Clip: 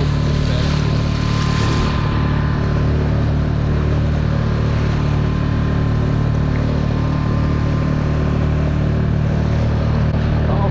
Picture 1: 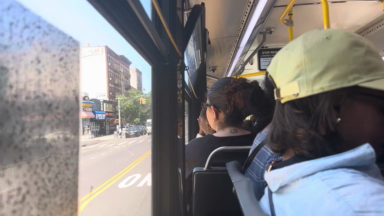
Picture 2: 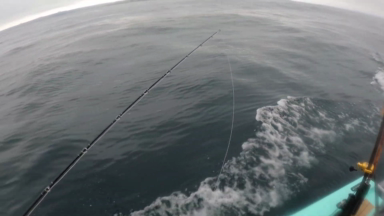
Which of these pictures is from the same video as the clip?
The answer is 2